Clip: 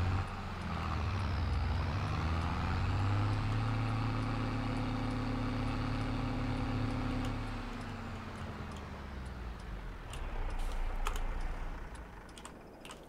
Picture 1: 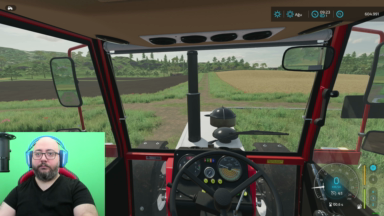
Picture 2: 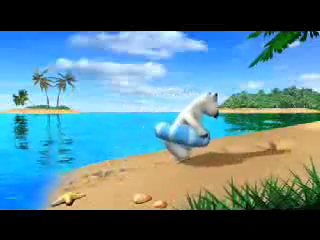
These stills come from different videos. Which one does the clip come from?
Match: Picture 1